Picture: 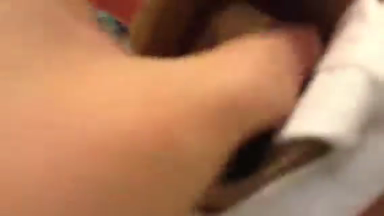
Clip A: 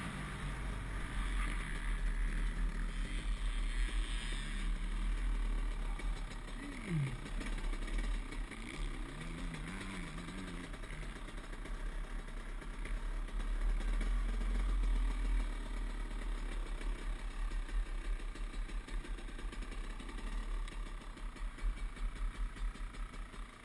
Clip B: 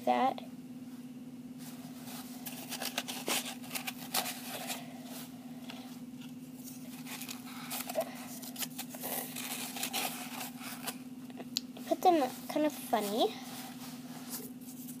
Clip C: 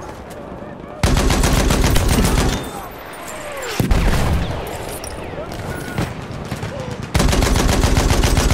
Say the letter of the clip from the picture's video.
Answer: B